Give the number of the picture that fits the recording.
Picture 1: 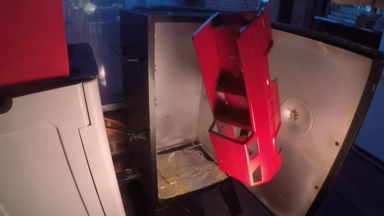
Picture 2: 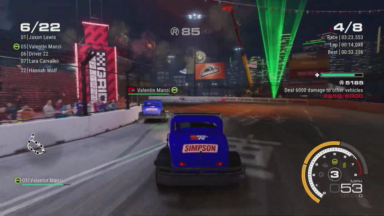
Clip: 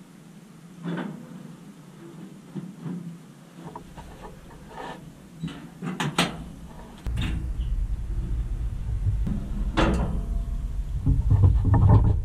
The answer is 1